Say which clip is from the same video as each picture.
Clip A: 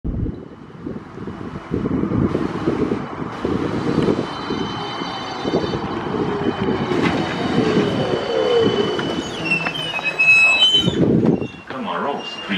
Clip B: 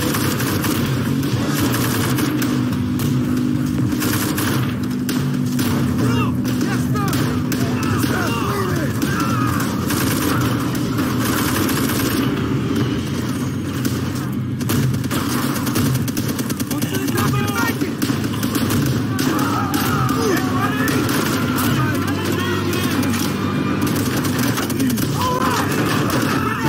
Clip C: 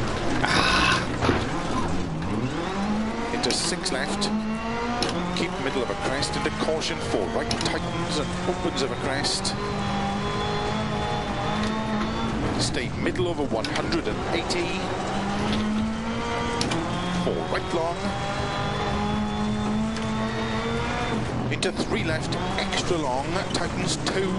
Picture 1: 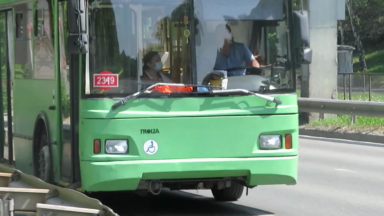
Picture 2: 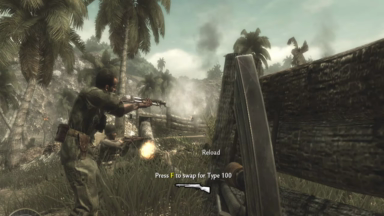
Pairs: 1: A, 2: B